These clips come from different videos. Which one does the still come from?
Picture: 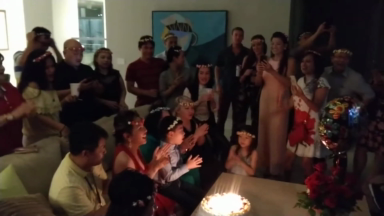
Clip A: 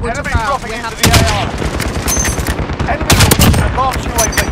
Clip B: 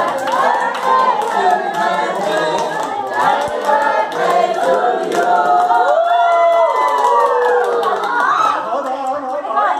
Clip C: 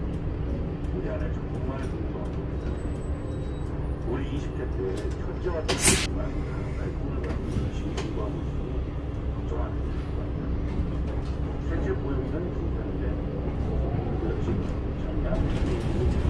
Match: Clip B